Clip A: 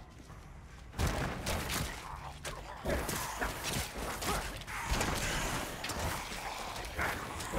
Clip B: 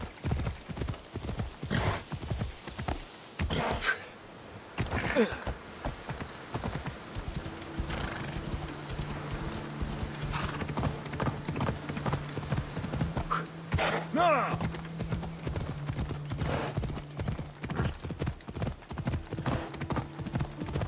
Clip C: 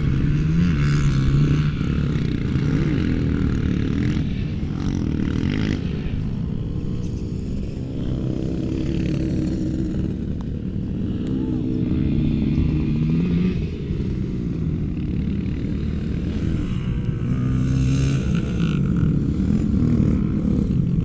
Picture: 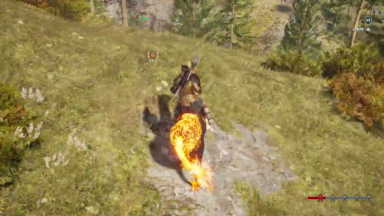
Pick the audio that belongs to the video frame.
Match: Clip B